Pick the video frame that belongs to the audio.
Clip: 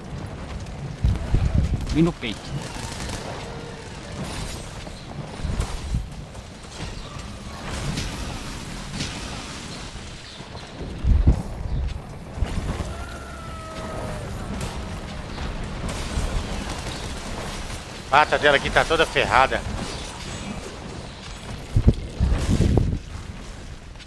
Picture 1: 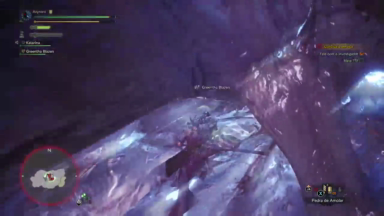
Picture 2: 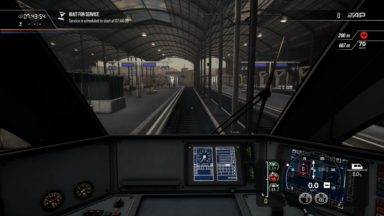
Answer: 1